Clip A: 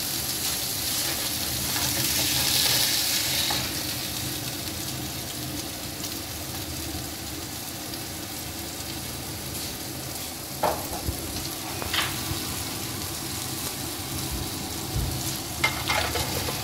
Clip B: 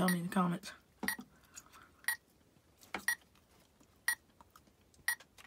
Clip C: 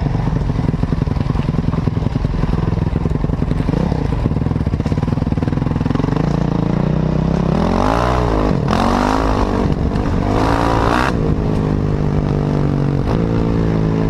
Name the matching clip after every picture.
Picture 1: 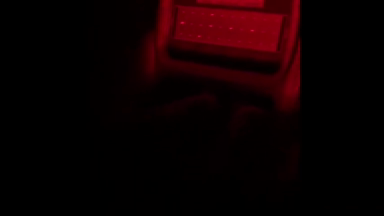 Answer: B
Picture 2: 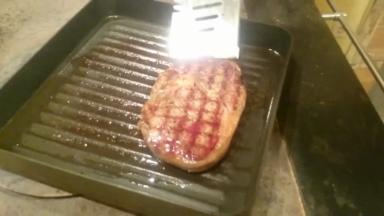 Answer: A